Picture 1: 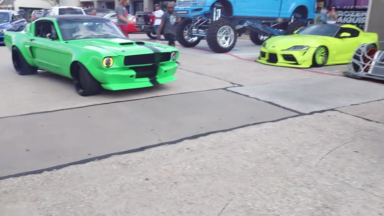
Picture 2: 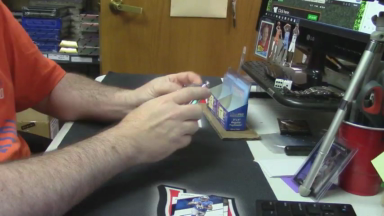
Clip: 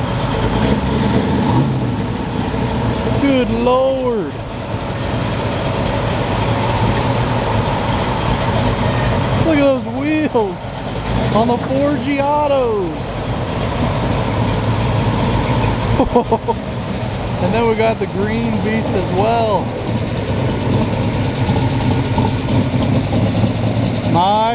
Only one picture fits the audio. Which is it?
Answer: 1